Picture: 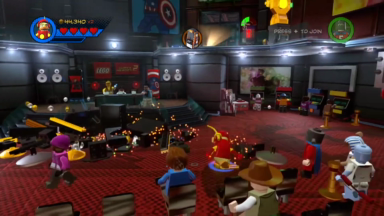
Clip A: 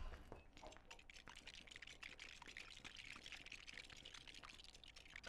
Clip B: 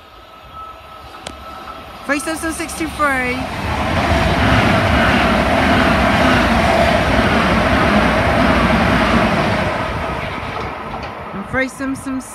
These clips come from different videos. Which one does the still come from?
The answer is A